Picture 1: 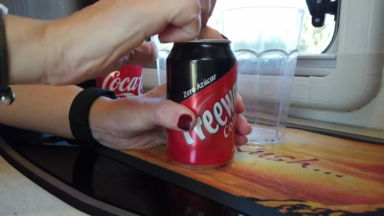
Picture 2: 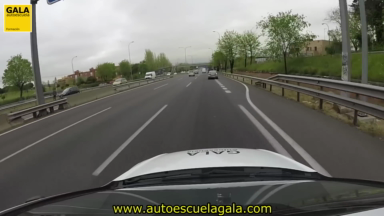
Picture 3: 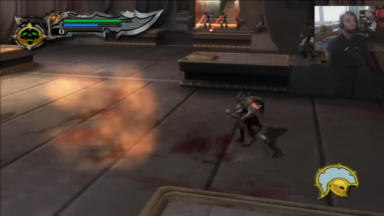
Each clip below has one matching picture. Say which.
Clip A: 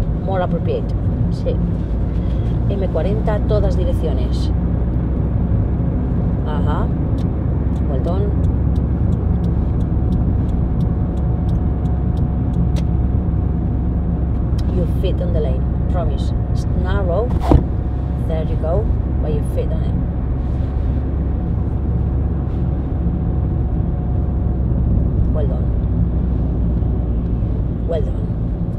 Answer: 2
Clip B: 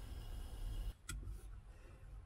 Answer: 1